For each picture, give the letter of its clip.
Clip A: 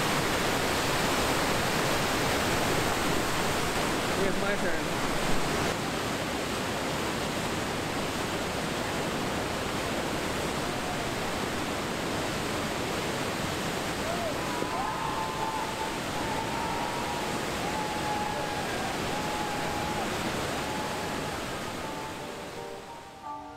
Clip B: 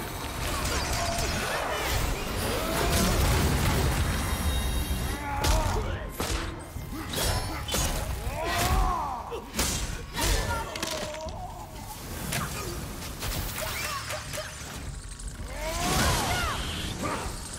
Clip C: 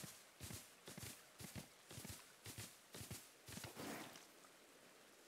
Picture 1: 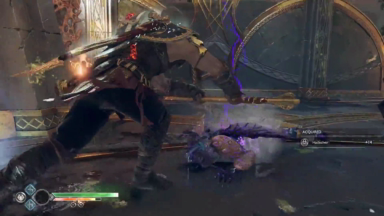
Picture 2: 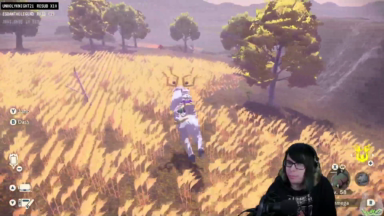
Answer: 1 B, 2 C